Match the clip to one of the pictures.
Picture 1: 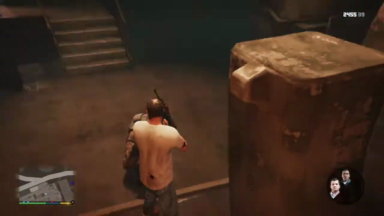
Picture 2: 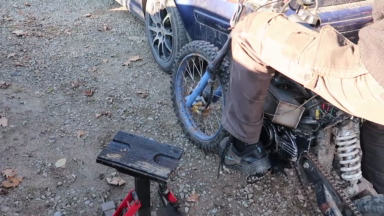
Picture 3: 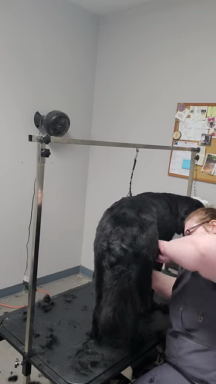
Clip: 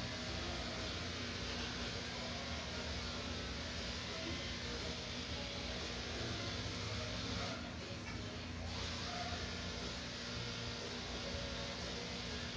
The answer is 3